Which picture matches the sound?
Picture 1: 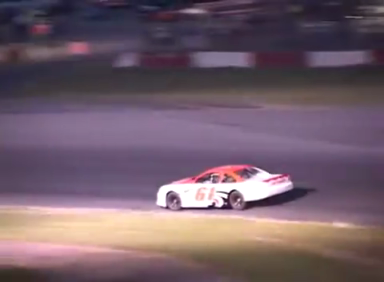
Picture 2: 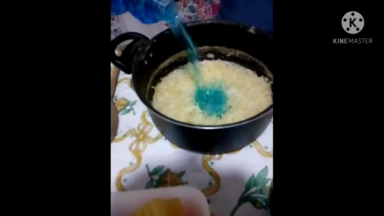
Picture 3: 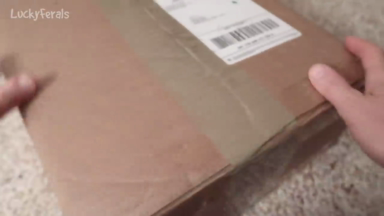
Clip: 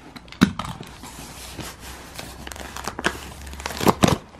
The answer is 3